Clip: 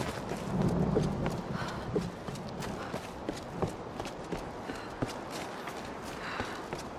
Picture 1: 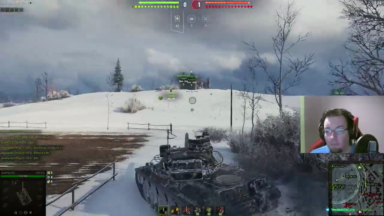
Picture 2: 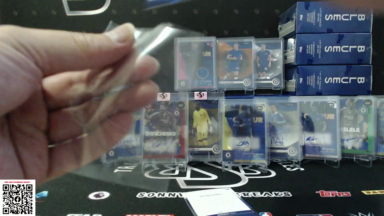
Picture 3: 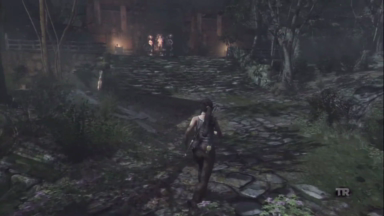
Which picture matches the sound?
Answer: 3